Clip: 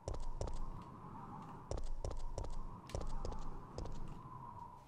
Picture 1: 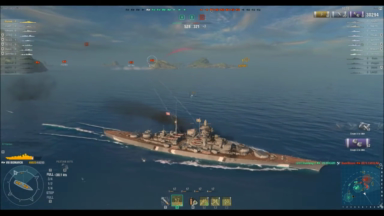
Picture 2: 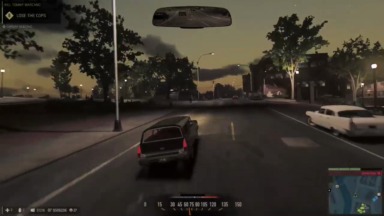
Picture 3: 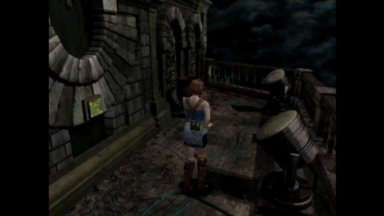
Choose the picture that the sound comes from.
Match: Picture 3